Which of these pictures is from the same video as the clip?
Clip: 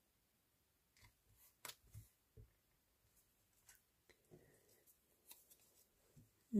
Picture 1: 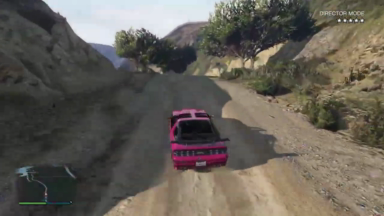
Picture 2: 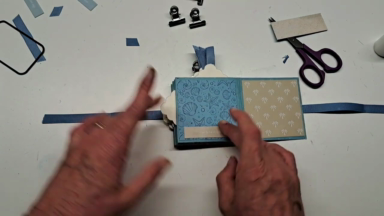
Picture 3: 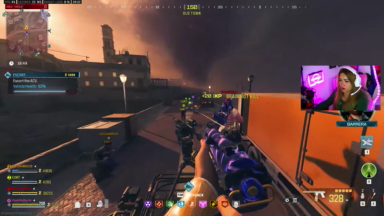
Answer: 2